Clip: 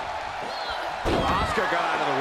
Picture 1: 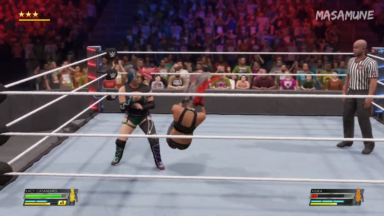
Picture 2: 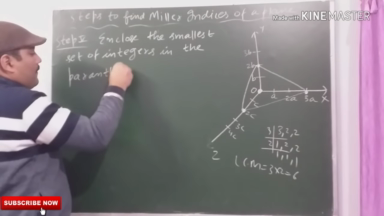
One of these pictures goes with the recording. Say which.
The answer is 1